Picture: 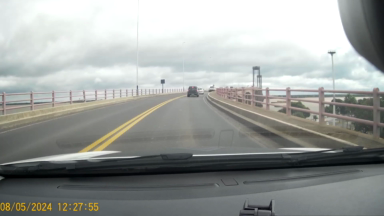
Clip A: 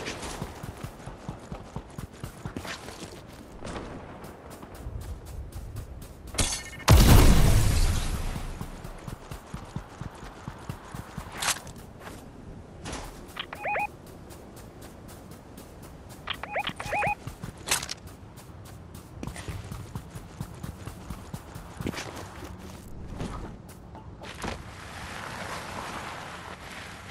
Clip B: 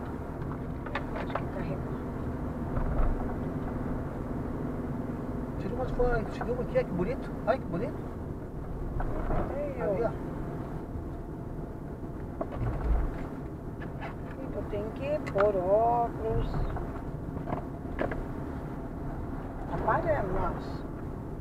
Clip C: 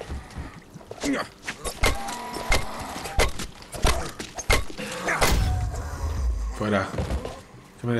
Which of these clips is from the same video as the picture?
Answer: B